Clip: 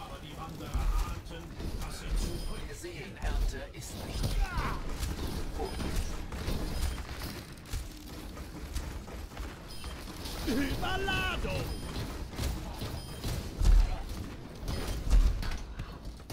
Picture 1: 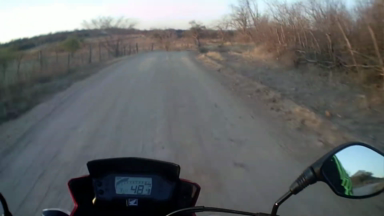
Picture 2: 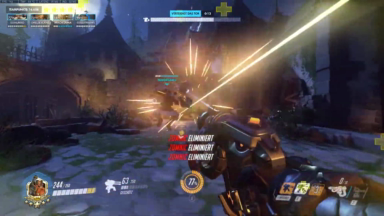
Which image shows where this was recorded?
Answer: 2